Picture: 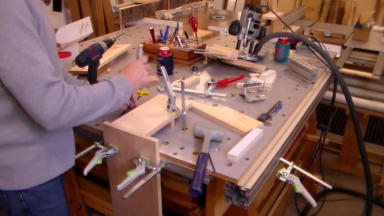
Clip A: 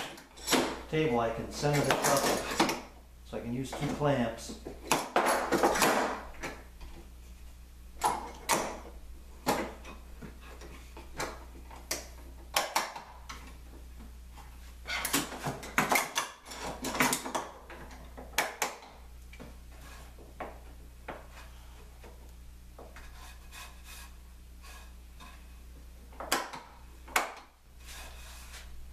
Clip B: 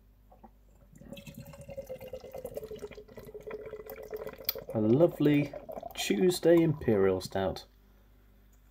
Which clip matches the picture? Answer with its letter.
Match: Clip A